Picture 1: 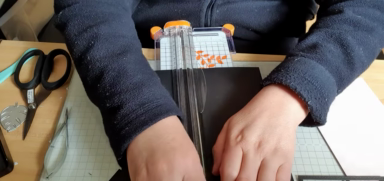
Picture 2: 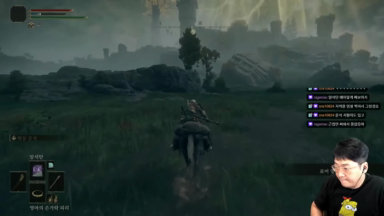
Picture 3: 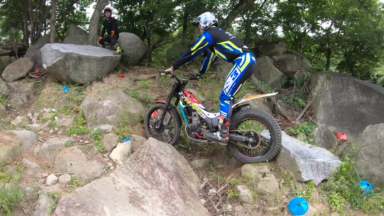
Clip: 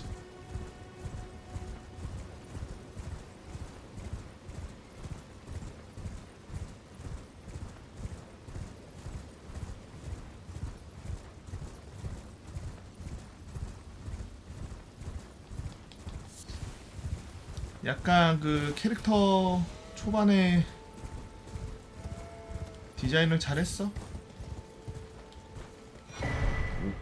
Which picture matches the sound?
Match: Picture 2